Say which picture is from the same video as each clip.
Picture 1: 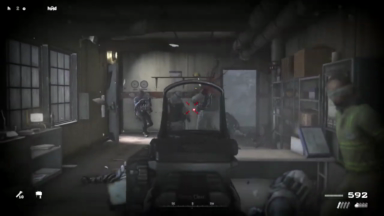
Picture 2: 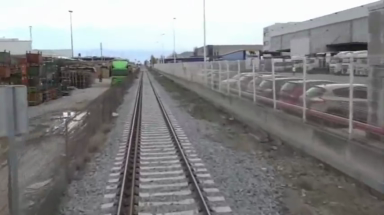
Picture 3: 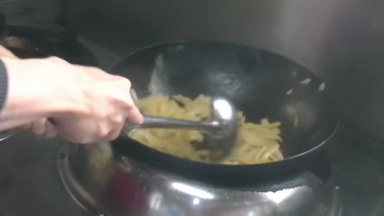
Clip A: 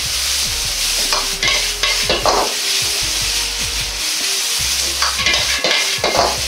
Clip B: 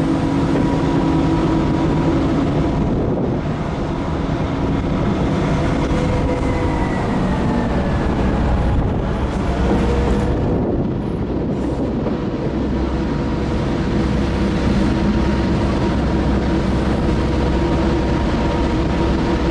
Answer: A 3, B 2